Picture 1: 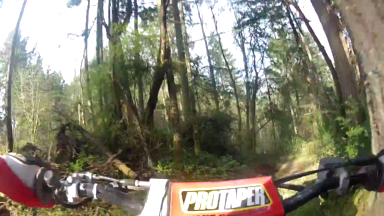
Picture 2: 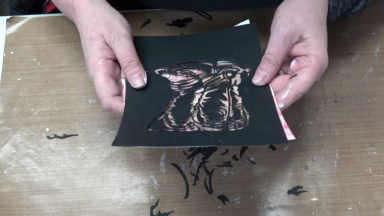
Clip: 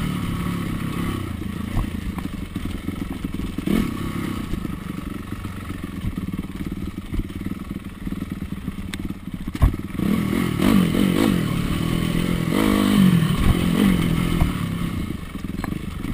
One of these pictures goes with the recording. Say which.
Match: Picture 1